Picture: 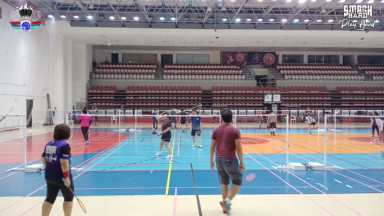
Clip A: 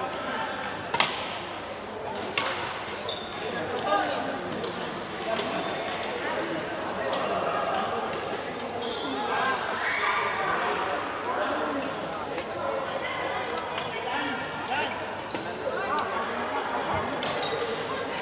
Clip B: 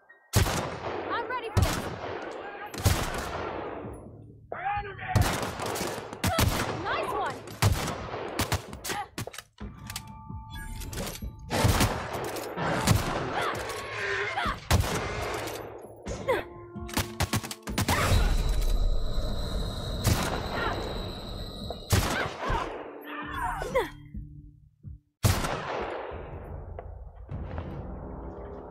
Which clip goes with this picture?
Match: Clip A